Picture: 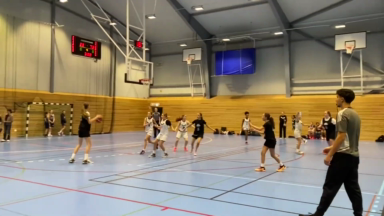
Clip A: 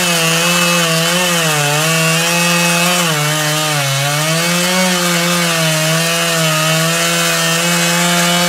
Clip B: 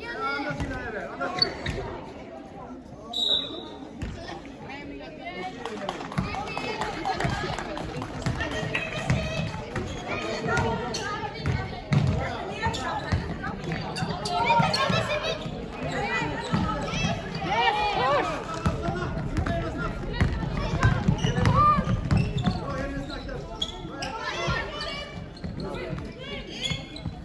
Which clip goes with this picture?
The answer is B